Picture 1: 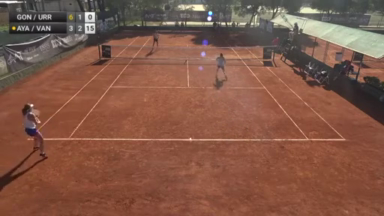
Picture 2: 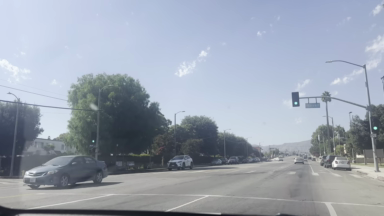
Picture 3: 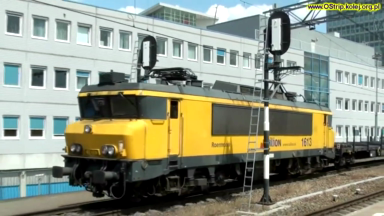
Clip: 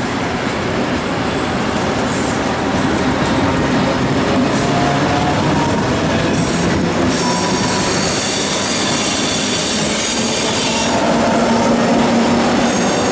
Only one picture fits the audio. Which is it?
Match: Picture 3